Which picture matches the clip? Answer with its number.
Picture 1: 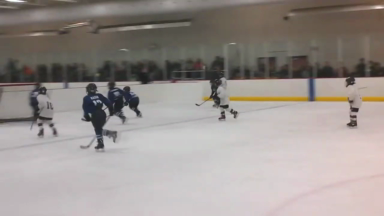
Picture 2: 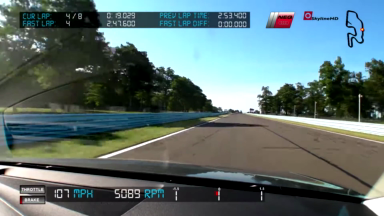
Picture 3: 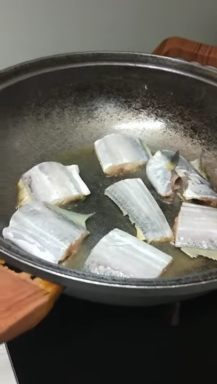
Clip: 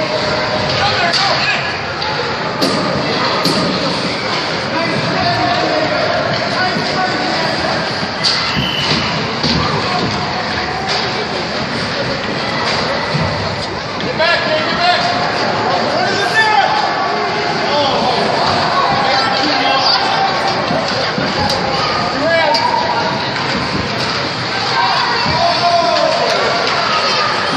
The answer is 1